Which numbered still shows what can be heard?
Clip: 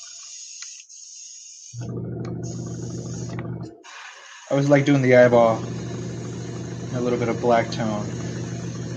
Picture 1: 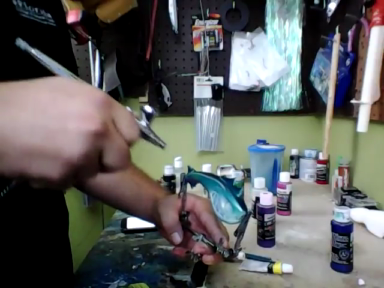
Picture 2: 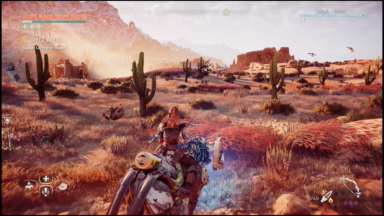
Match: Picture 1